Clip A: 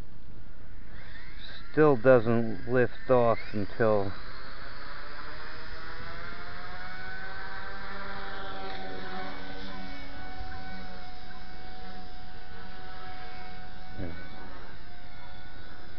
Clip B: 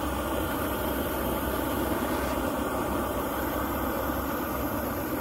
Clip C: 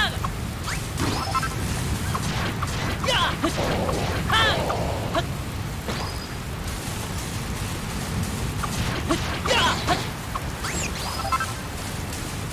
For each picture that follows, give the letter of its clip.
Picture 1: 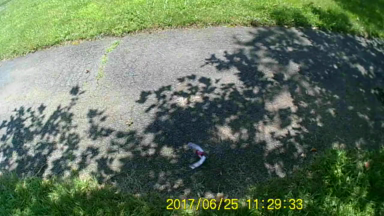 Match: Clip A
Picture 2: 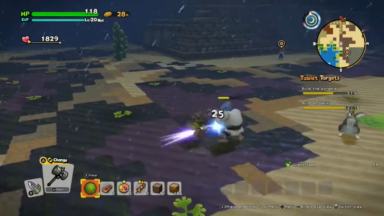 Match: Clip C